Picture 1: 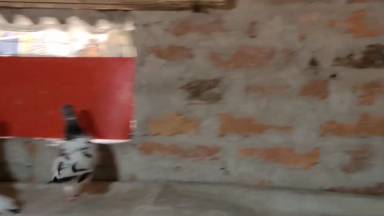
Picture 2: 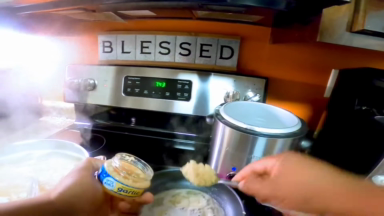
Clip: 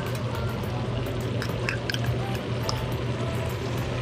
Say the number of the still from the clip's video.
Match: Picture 2